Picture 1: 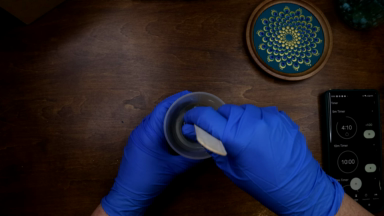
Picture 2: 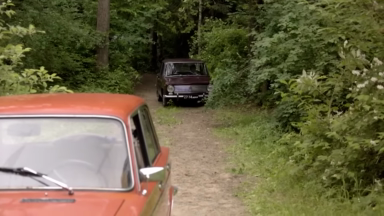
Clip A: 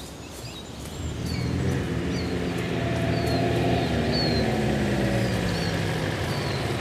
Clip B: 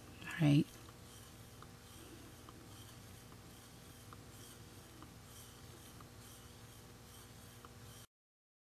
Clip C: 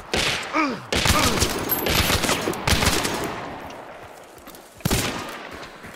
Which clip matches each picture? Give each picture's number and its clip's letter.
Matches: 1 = B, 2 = A